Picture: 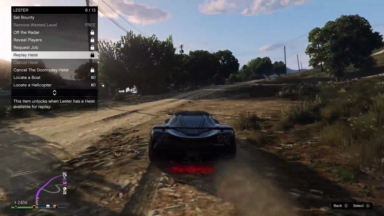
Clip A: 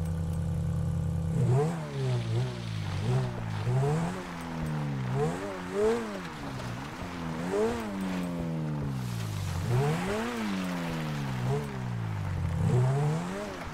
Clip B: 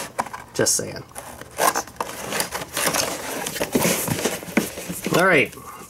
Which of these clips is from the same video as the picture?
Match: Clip A